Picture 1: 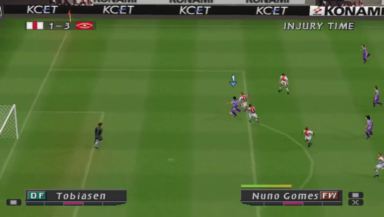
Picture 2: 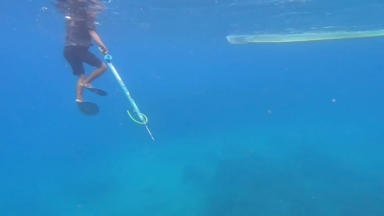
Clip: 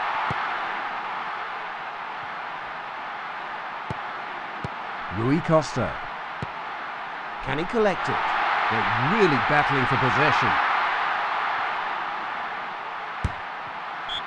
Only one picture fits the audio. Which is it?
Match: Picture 1